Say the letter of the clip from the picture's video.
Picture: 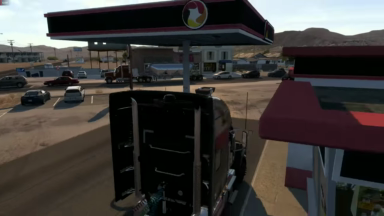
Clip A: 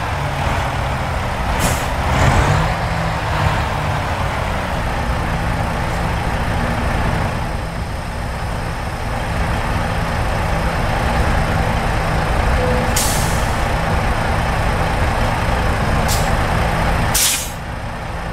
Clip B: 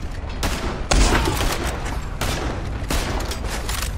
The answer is A